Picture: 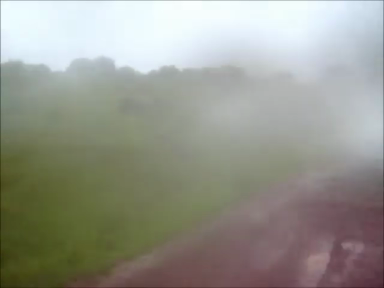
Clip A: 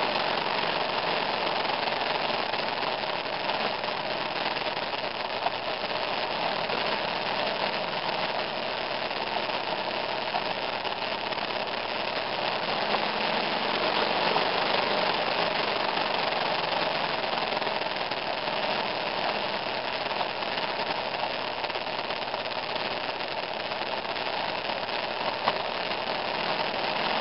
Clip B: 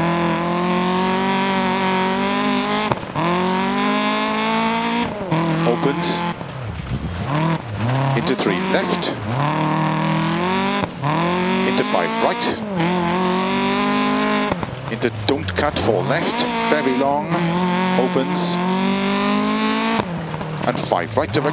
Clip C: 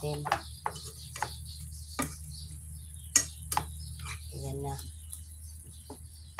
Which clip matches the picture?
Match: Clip A